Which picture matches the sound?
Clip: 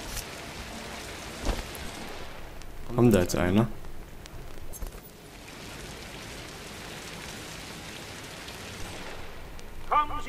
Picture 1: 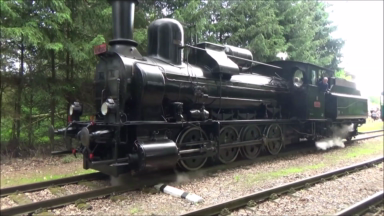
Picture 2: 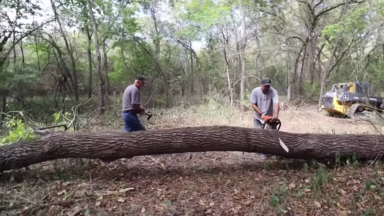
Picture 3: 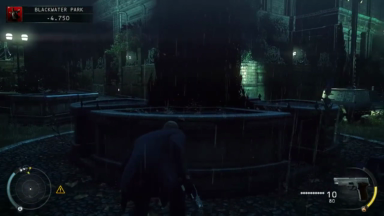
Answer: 3